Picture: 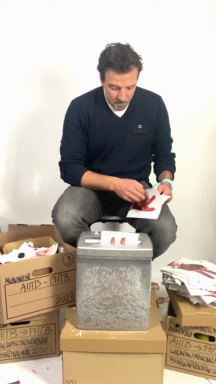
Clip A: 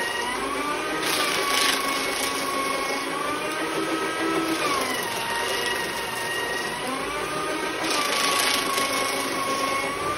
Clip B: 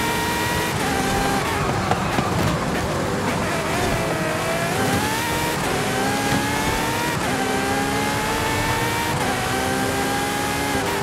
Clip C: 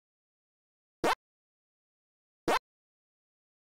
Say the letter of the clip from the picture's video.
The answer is A